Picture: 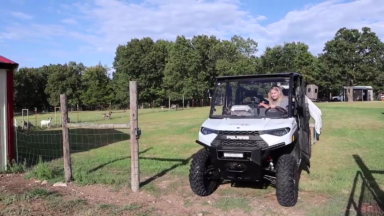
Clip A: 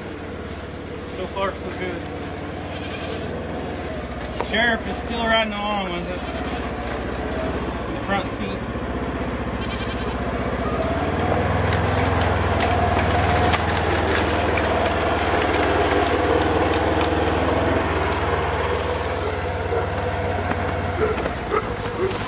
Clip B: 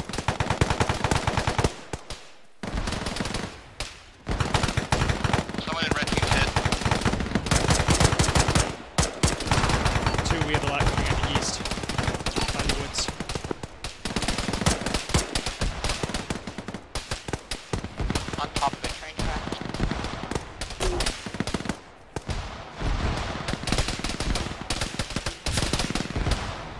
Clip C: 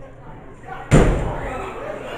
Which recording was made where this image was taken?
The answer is A